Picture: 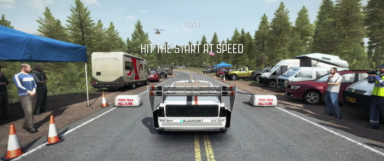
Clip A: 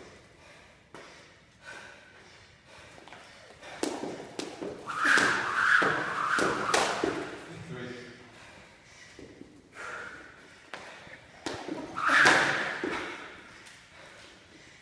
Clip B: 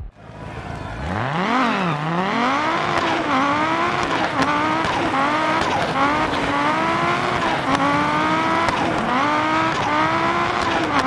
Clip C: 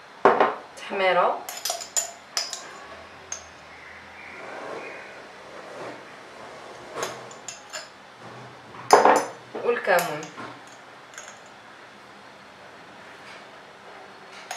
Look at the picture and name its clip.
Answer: B